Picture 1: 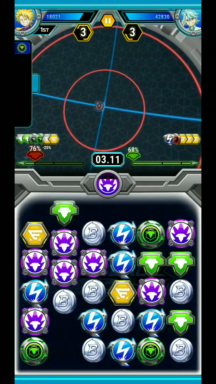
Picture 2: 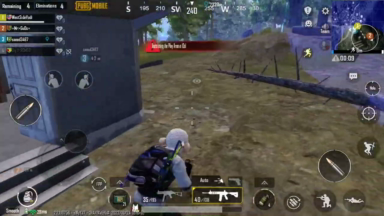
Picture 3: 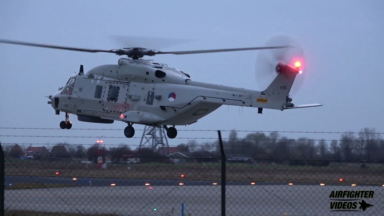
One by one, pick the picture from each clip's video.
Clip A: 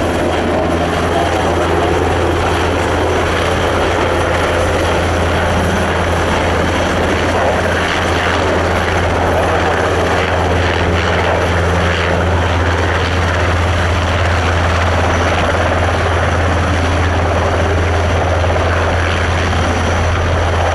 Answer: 3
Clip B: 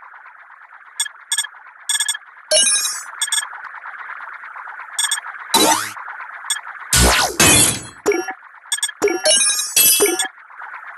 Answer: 1